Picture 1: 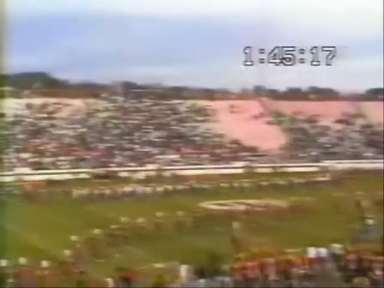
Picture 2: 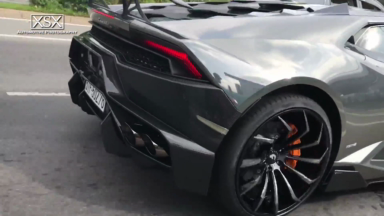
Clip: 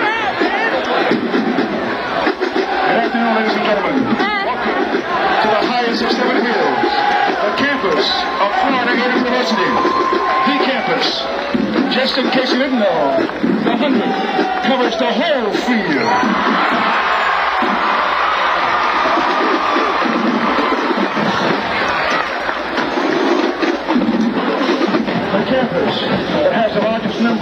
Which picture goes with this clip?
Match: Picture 1